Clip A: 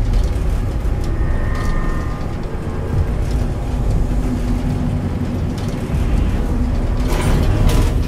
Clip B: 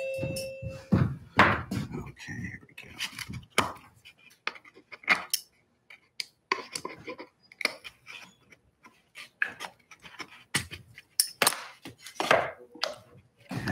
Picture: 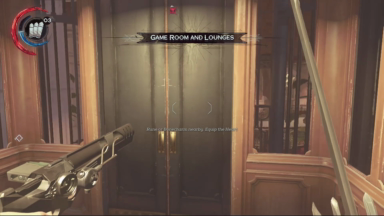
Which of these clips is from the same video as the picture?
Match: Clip A